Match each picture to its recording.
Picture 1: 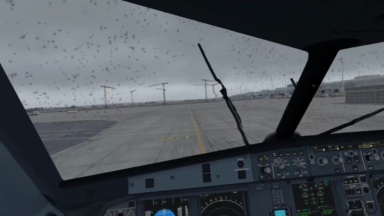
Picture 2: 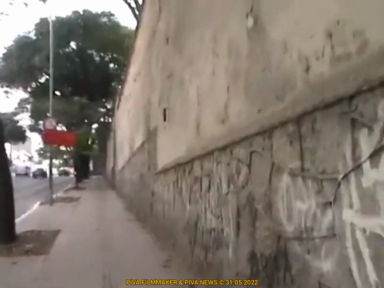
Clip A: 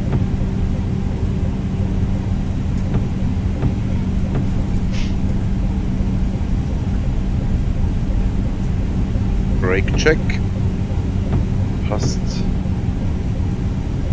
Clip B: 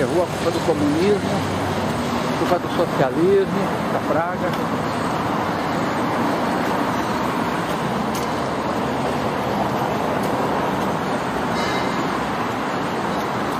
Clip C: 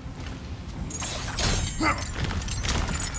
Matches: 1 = A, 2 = B